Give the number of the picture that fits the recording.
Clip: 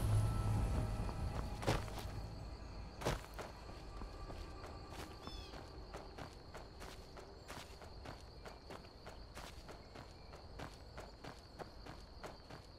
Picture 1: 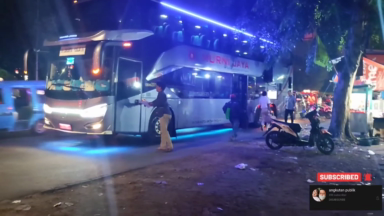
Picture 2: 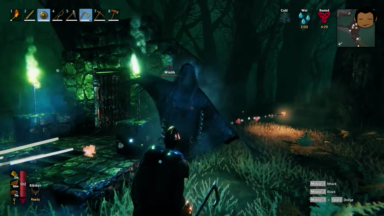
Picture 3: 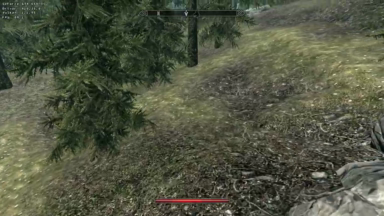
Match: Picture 3